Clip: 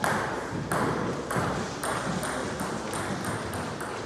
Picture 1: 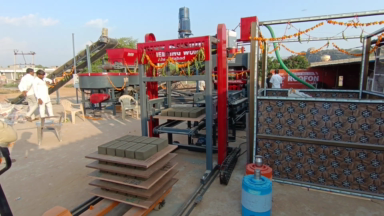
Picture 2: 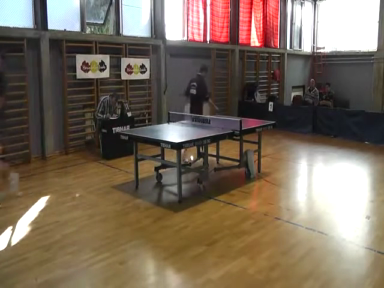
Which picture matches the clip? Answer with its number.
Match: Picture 2